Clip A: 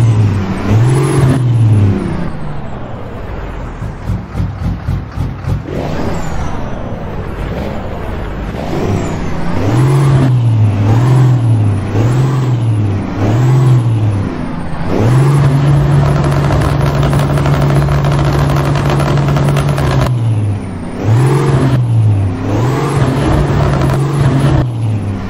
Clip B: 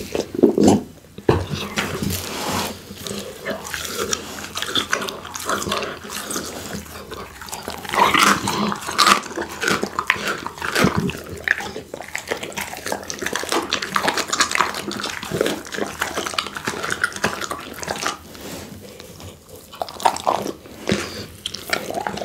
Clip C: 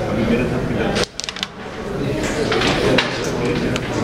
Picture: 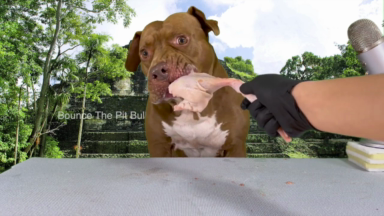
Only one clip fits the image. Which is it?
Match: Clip B